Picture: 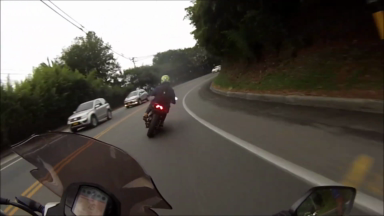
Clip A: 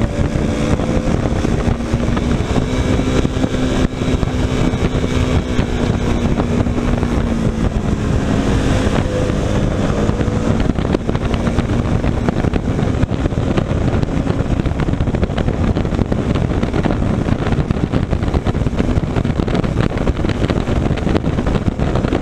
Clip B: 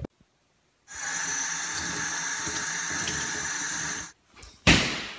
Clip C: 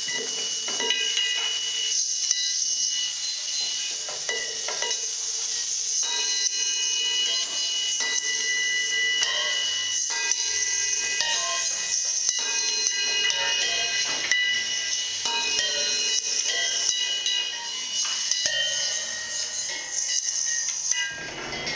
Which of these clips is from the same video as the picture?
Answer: A